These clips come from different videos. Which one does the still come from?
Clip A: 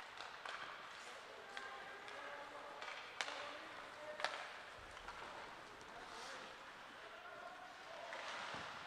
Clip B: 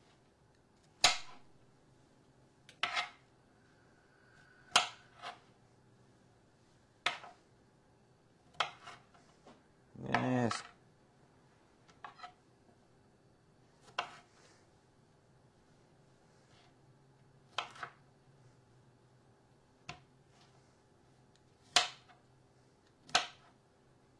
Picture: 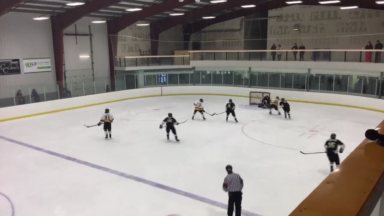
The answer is A